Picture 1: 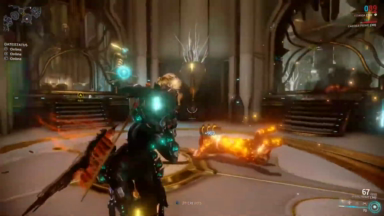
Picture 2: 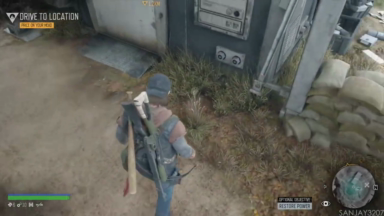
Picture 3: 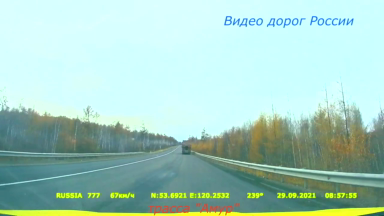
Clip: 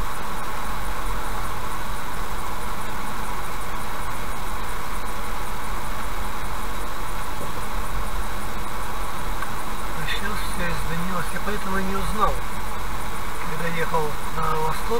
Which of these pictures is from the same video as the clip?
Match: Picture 3